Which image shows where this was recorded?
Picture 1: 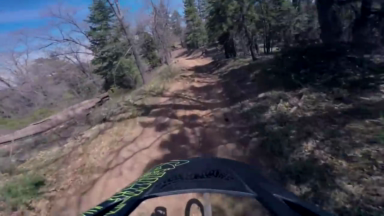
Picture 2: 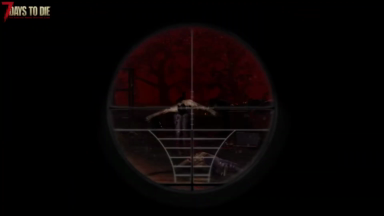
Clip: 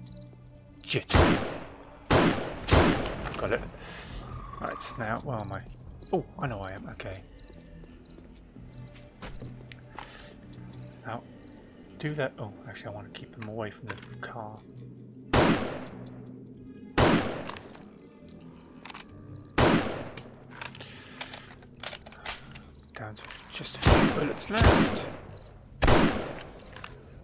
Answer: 2